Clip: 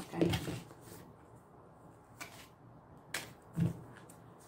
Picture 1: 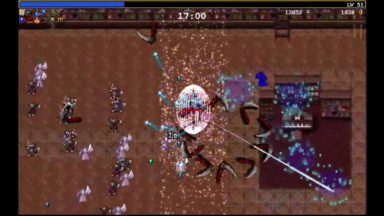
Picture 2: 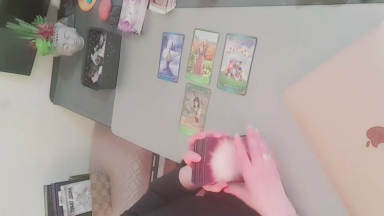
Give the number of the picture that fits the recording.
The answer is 2